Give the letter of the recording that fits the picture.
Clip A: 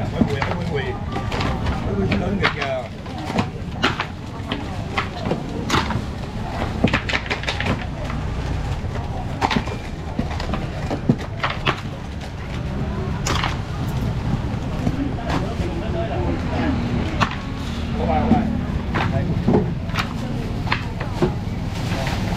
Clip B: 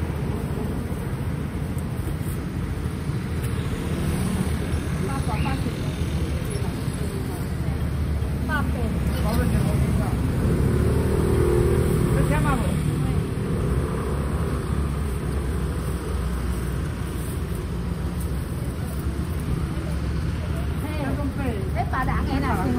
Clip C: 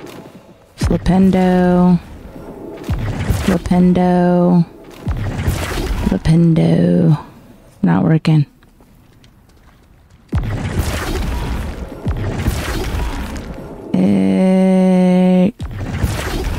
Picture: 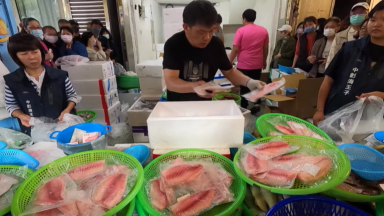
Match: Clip A